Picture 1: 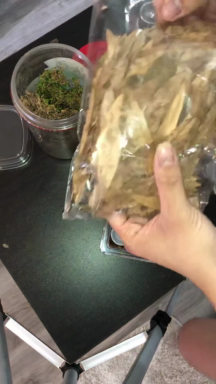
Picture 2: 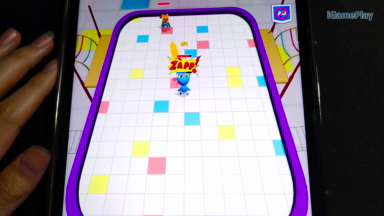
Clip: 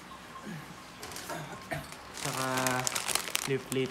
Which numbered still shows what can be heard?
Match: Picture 1